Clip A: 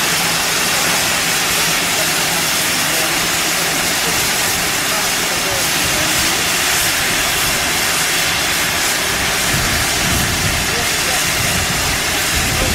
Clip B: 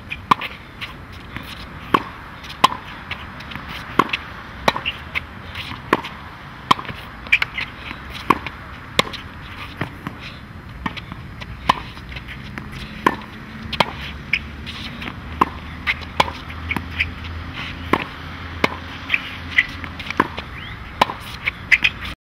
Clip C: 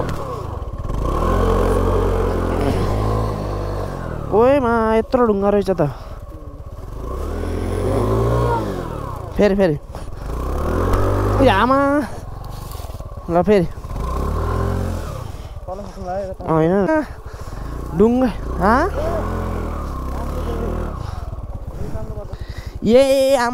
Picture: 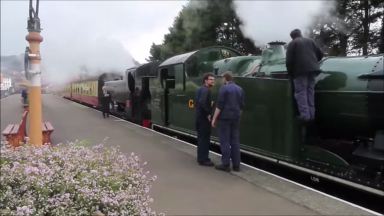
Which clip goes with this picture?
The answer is A